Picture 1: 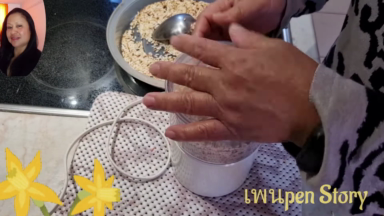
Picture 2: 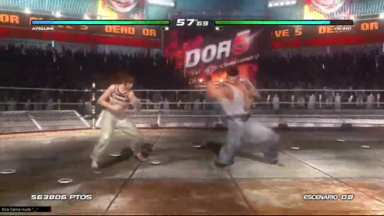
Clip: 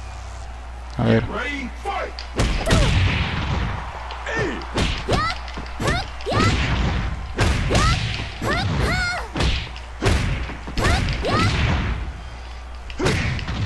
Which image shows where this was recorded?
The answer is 2